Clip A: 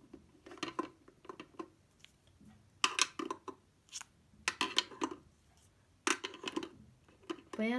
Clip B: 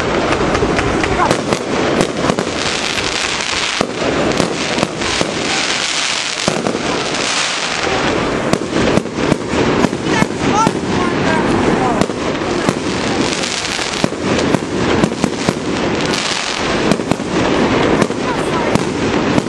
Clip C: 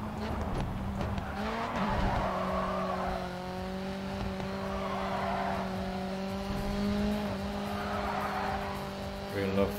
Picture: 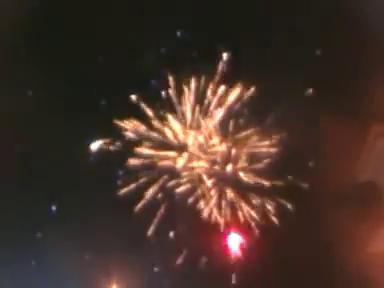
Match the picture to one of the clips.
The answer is B